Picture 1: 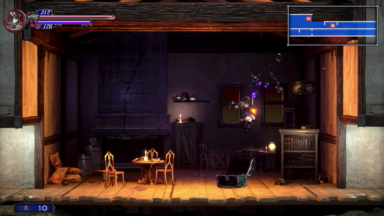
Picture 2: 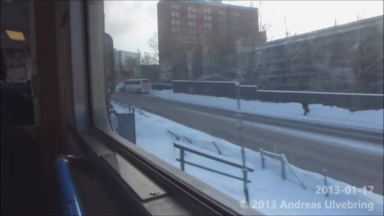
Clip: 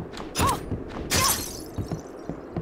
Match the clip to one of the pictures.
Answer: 1